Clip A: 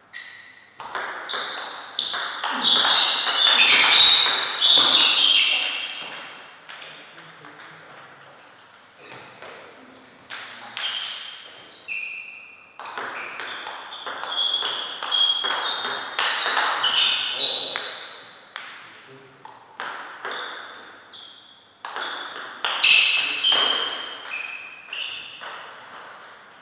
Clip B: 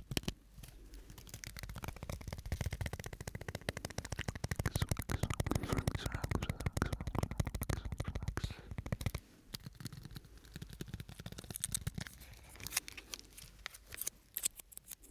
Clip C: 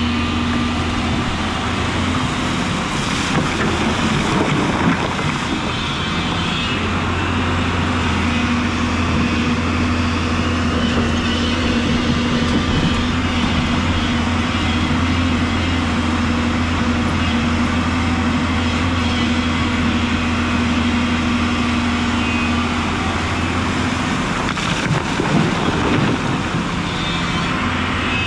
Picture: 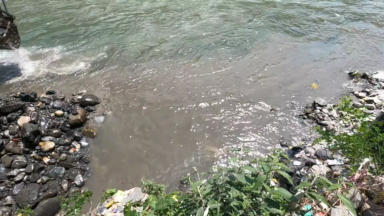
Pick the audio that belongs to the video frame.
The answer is C